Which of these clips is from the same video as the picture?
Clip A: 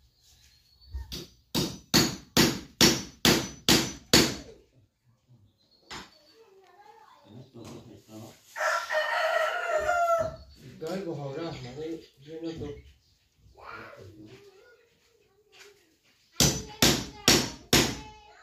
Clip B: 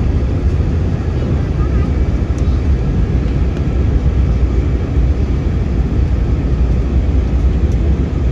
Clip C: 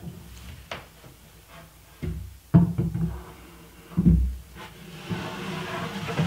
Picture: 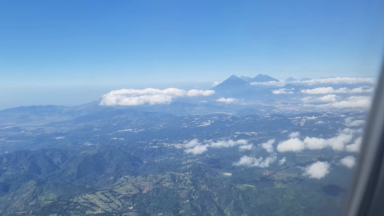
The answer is B